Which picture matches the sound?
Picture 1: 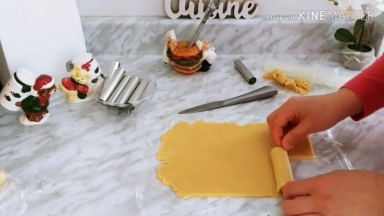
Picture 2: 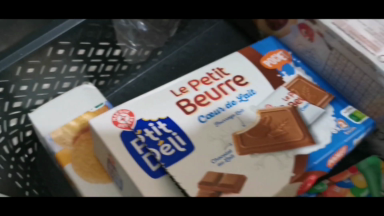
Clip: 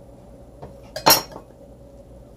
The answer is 1